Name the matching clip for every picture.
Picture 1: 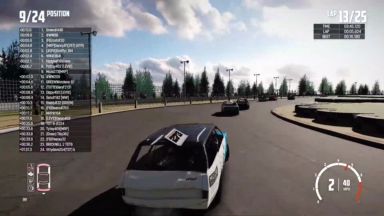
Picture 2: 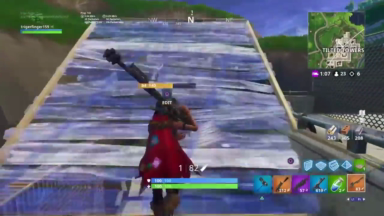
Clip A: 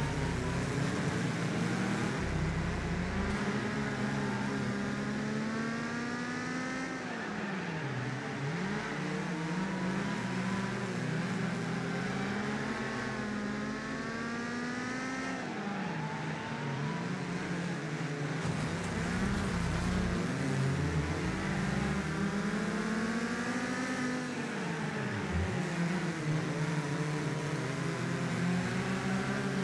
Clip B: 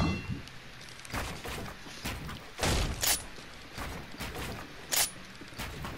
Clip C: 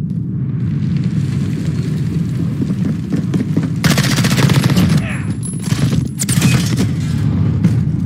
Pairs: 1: A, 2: B